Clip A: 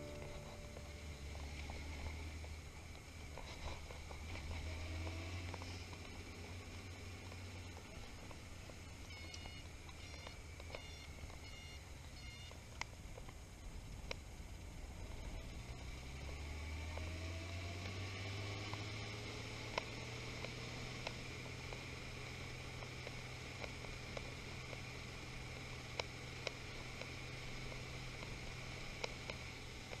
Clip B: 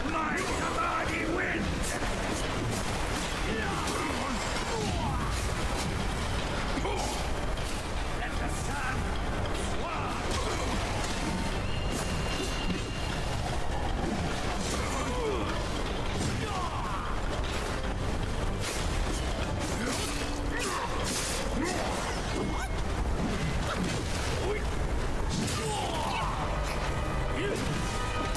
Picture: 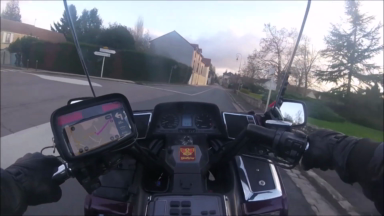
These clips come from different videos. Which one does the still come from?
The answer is A